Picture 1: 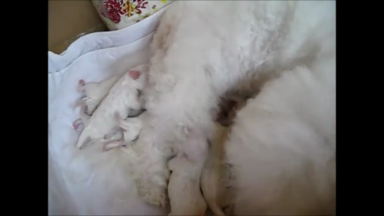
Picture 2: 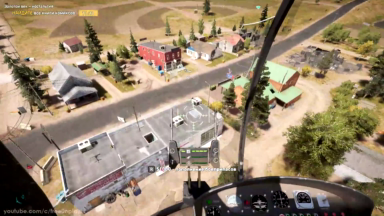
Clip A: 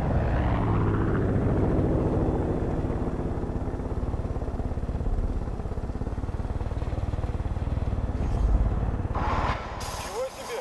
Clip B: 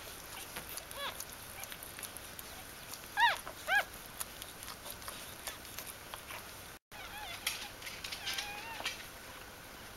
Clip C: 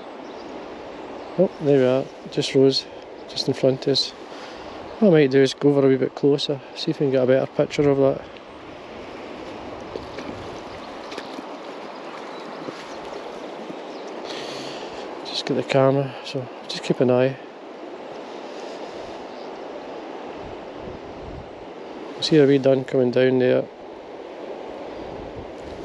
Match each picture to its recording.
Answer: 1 B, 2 A